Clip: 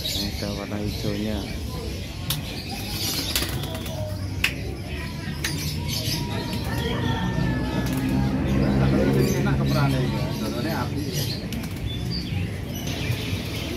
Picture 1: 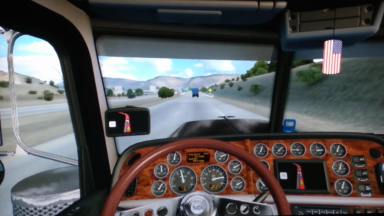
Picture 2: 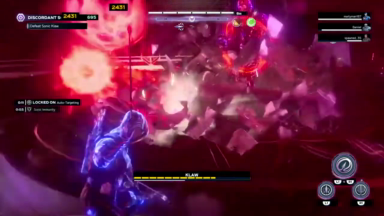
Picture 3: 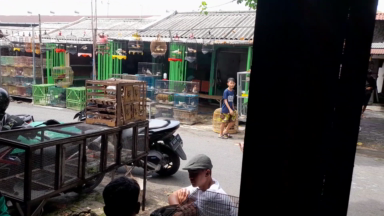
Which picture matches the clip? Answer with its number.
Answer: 3